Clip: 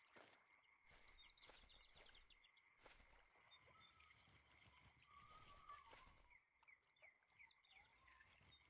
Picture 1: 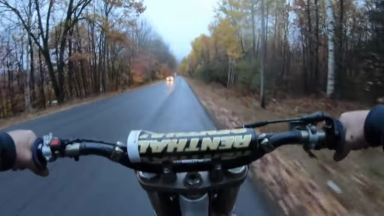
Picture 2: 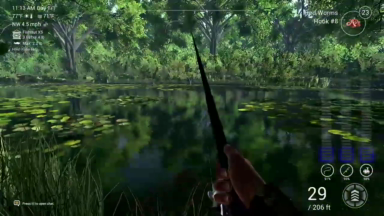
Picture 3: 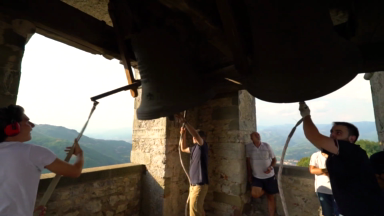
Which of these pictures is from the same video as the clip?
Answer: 2